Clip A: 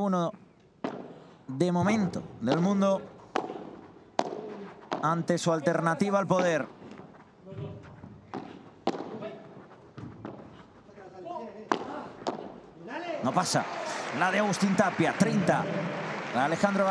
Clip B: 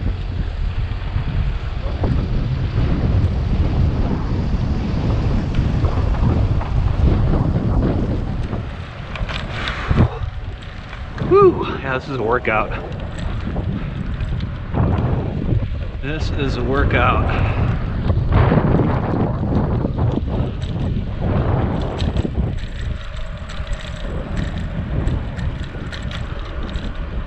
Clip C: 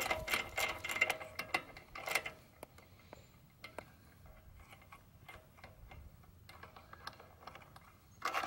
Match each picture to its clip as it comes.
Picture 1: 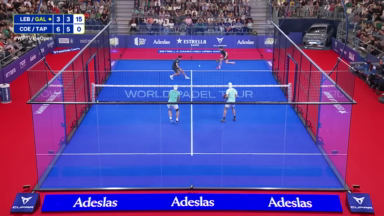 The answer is A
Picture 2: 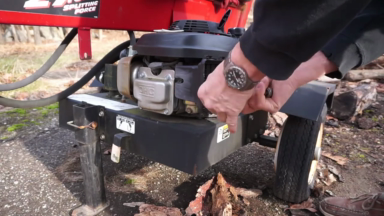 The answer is C